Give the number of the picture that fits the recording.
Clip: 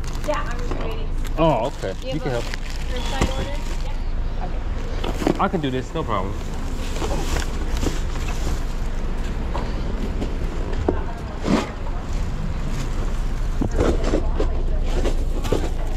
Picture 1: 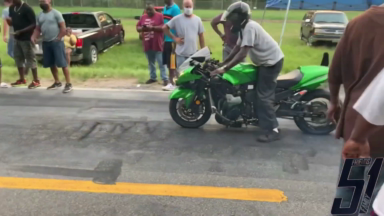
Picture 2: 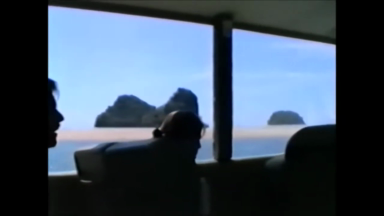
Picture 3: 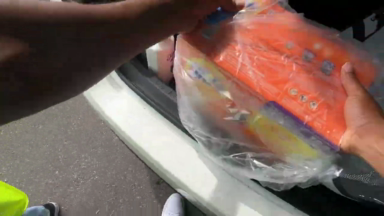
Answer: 3